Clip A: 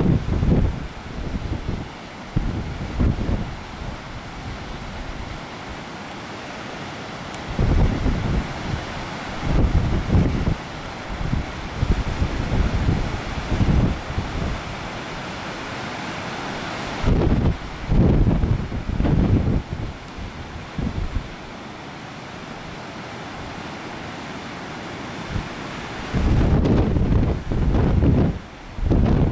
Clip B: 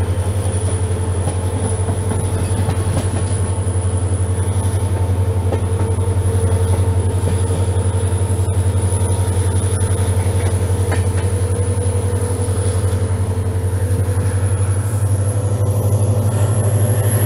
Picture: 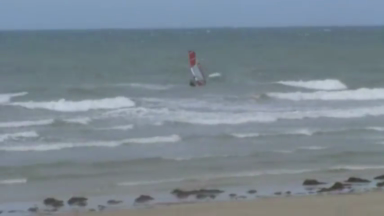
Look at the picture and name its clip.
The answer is A